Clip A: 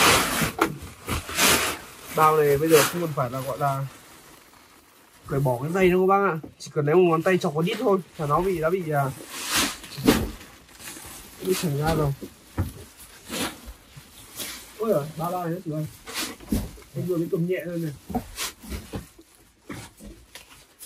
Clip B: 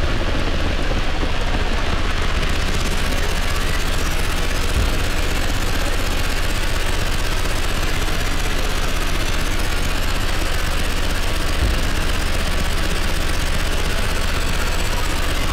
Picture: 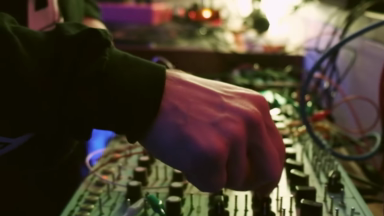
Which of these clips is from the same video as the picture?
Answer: B